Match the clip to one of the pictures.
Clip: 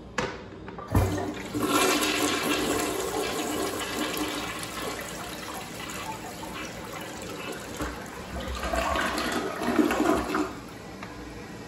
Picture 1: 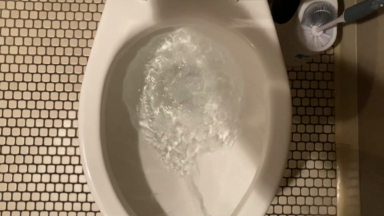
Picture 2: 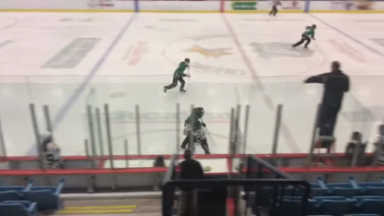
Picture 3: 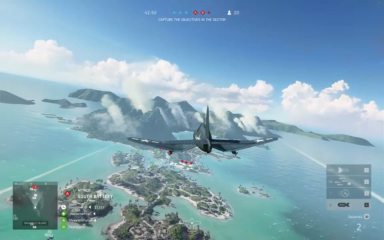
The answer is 1